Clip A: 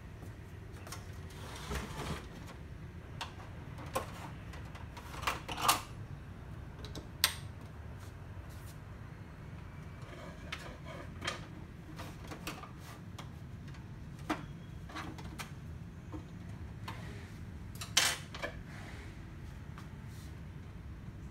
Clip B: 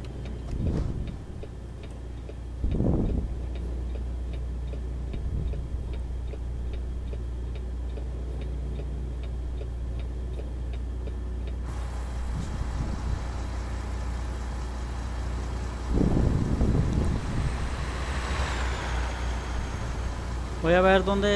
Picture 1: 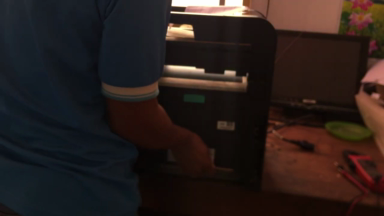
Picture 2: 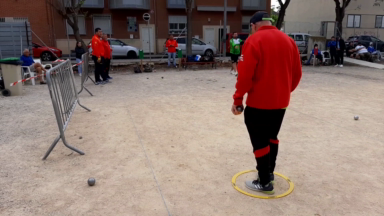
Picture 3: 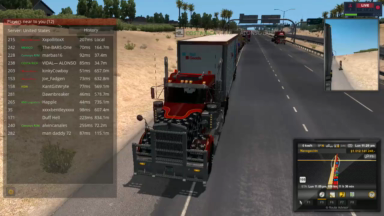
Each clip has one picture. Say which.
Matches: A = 1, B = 3